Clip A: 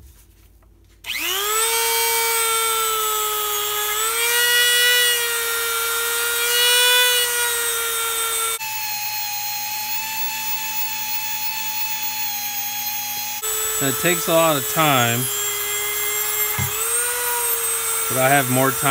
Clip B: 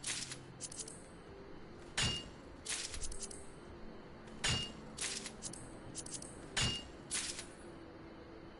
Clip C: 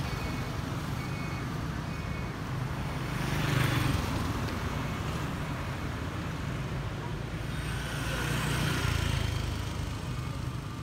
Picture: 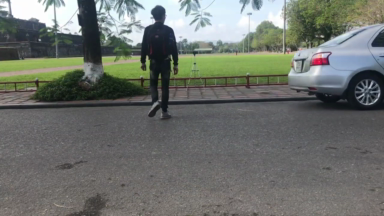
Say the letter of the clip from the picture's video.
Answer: C